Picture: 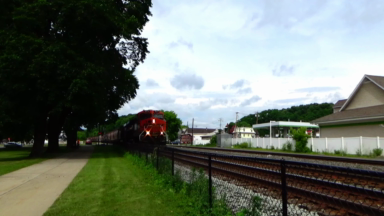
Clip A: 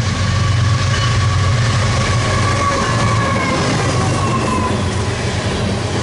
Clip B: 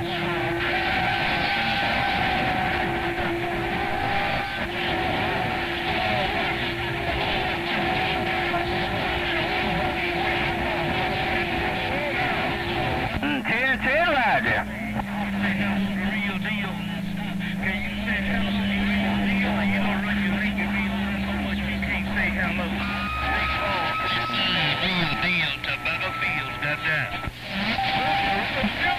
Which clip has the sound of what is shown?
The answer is A